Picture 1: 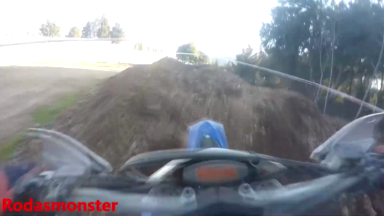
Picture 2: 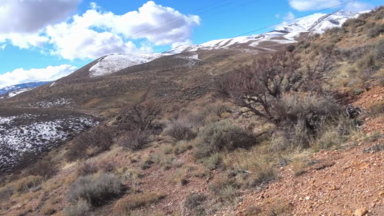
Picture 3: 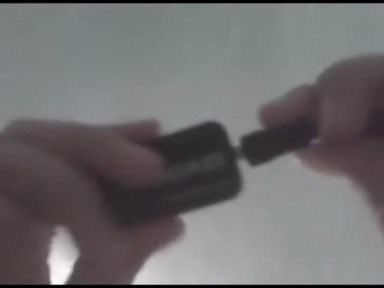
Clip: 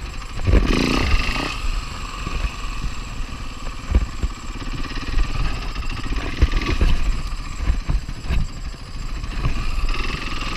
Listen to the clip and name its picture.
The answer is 1